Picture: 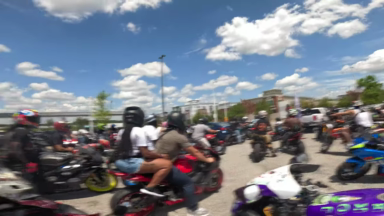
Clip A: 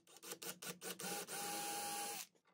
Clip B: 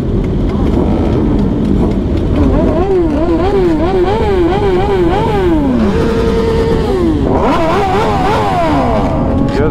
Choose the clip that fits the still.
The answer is B